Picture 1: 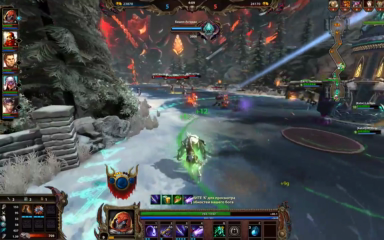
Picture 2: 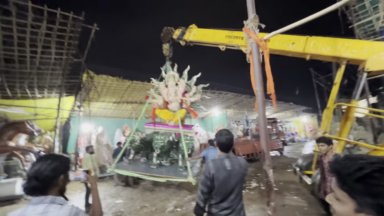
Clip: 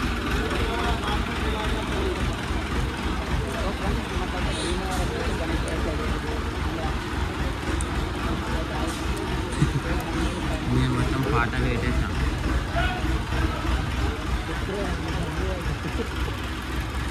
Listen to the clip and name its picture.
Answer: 2